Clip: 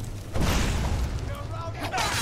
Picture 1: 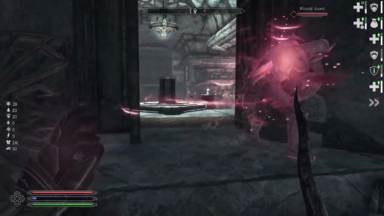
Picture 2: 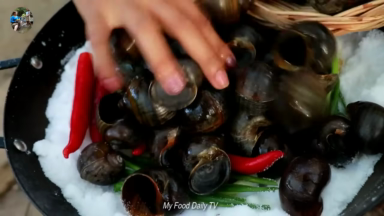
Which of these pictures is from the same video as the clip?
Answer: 1